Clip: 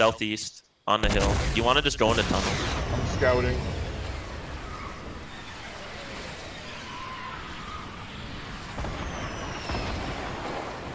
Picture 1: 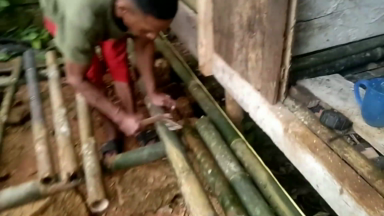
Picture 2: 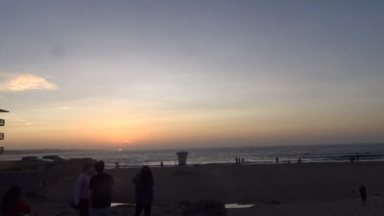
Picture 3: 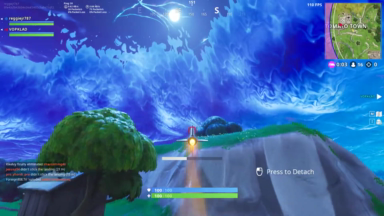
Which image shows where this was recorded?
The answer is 3